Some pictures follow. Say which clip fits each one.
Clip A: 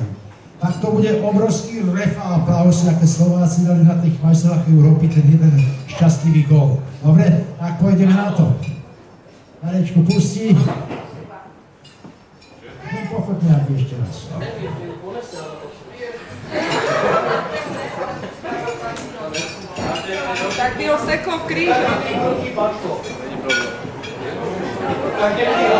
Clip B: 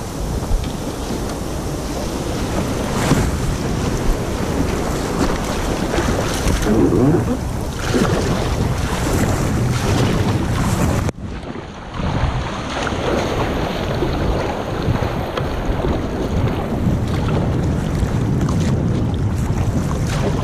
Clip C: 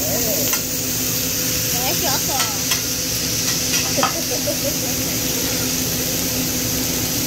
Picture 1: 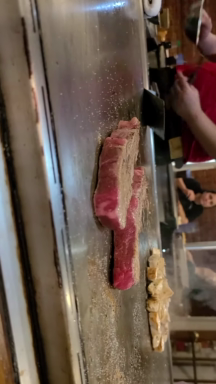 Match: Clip C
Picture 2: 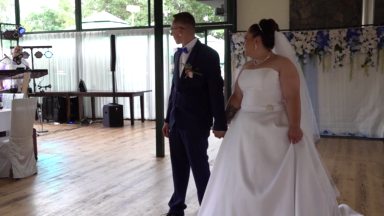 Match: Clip A